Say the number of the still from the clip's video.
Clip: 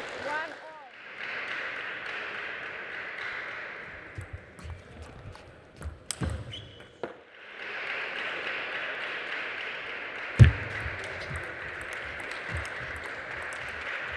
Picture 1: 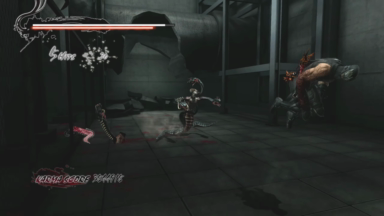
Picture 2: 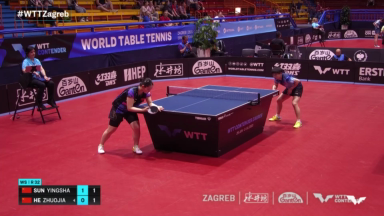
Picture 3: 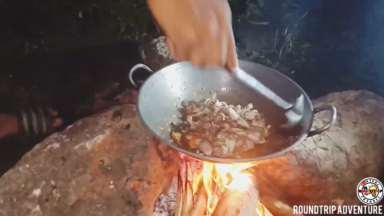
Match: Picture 2